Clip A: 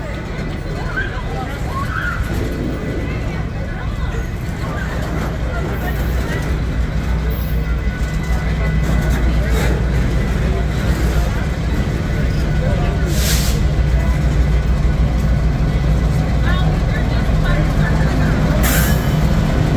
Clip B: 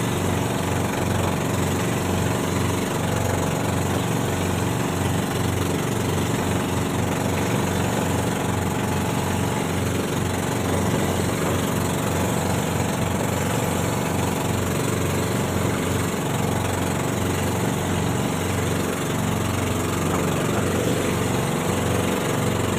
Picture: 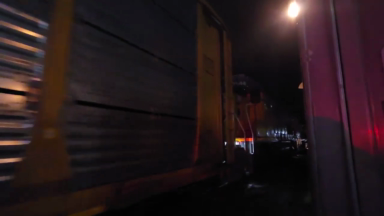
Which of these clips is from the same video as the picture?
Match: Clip A